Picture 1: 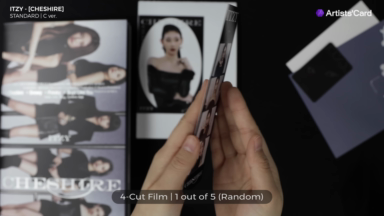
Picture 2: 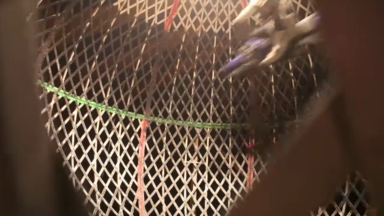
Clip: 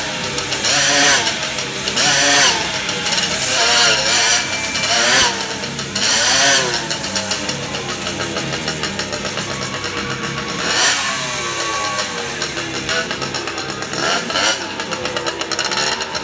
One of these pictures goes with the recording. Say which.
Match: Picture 2